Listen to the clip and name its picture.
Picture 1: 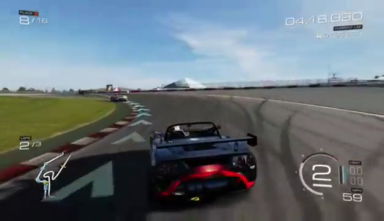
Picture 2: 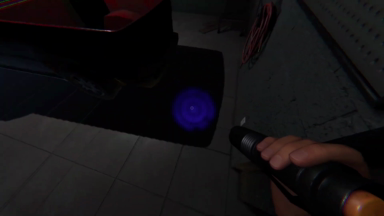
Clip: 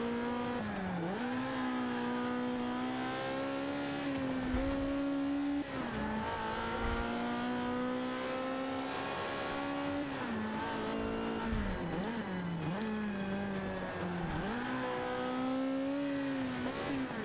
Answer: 1